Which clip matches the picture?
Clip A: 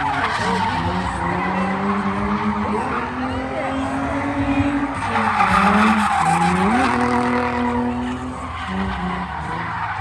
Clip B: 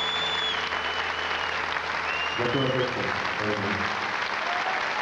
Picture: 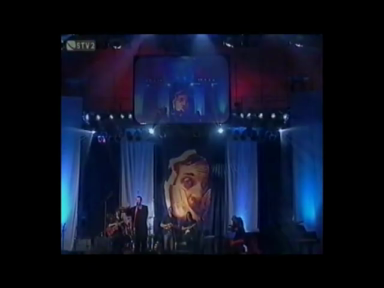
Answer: B